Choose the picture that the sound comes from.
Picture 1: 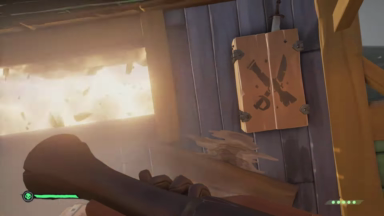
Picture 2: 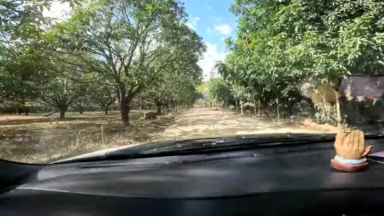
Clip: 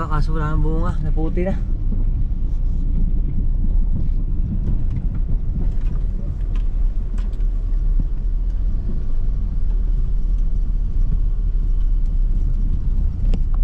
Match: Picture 2